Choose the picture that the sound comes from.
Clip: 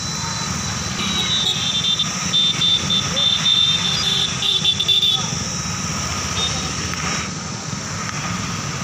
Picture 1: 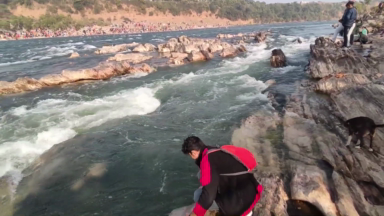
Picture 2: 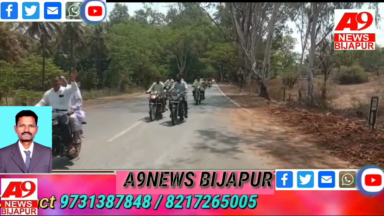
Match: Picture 2